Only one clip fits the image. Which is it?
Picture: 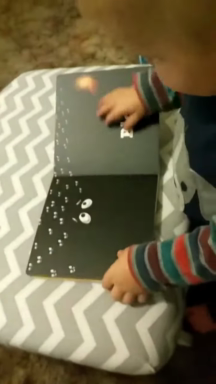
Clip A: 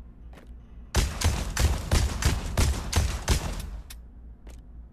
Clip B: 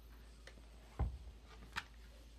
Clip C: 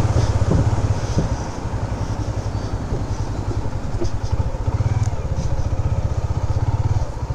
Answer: B